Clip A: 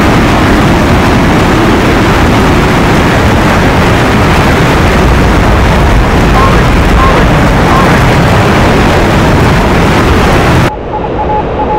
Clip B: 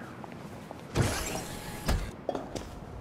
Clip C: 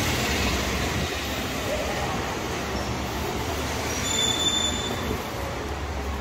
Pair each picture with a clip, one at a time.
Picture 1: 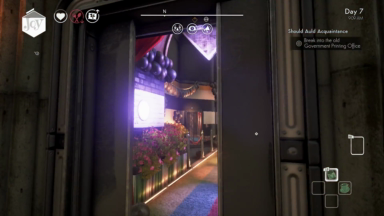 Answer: B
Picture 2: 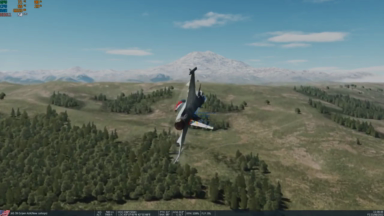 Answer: A